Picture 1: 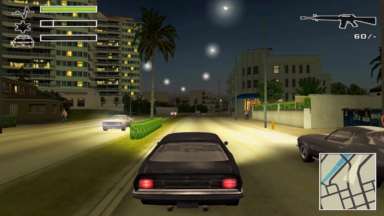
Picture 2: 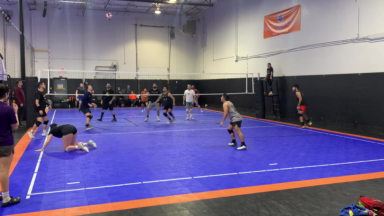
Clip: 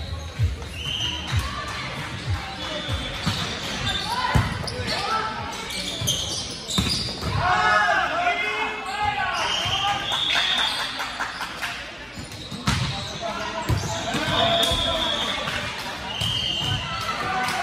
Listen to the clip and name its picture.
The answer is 2